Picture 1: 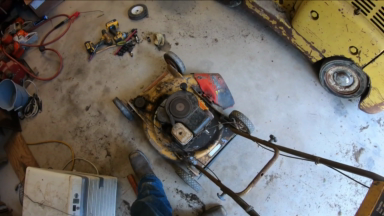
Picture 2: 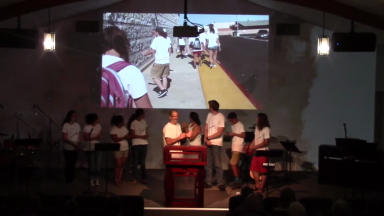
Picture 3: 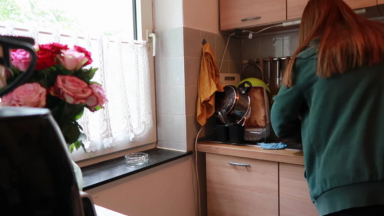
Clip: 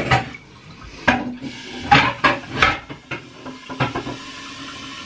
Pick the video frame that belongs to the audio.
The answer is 3